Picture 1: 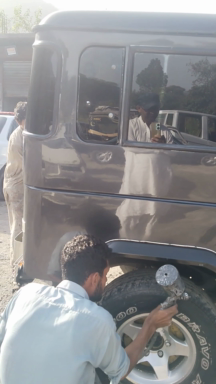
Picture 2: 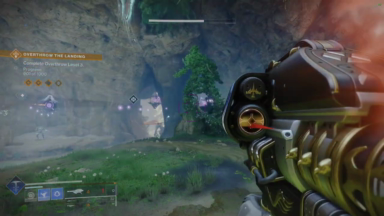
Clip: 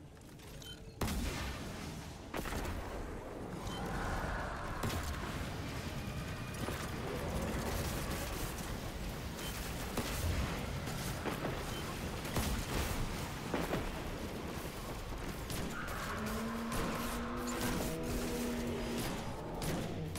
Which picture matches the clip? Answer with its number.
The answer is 2